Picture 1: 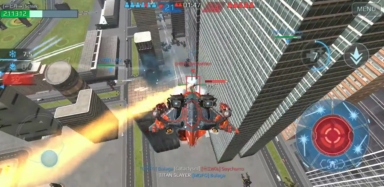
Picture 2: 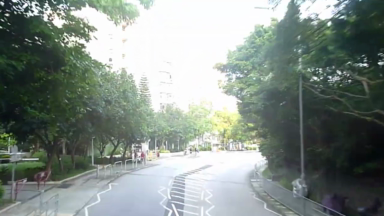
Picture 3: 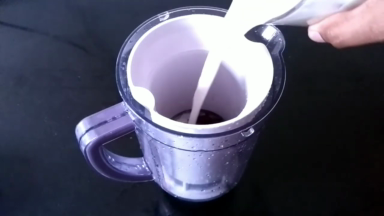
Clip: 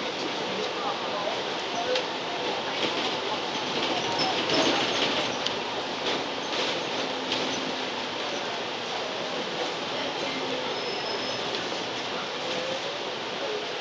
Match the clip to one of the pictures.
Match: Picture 2